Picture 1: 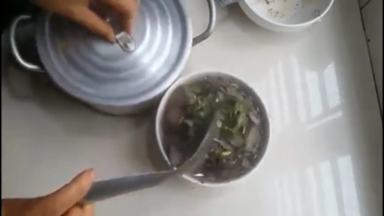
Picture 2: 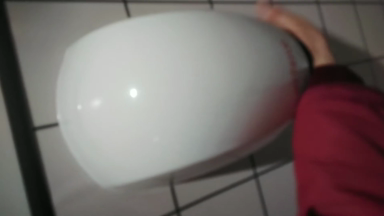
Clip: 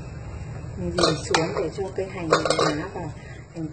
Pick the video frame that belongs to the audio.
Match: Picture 1